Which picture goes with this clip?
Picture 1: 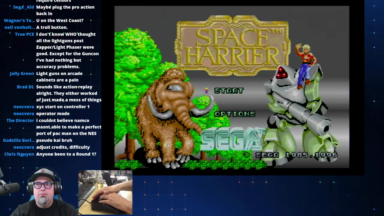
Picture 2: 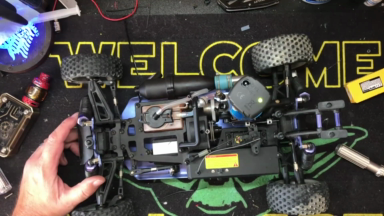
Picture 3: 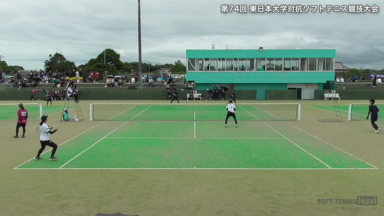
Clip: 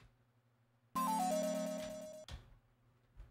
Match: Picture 1